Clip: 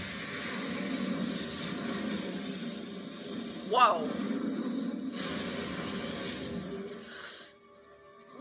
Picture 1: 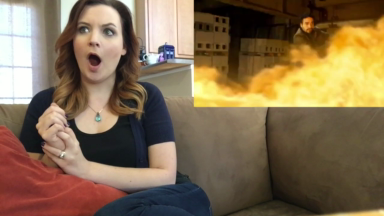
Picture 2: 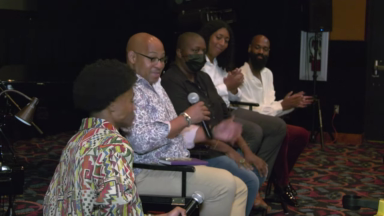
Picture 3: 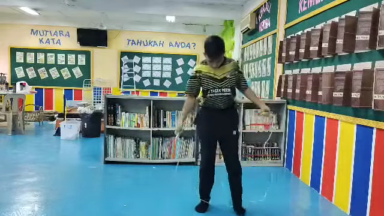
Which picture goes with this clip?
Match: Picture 1